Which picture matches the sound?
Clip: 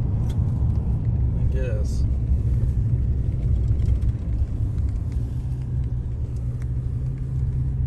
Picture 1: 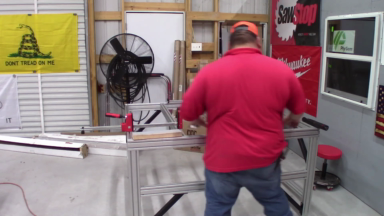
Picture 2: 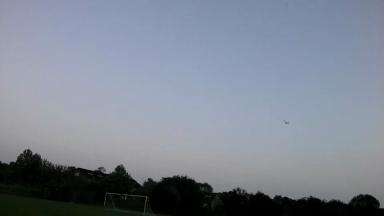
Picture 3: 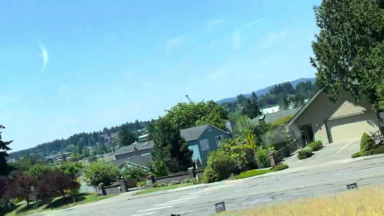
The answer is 3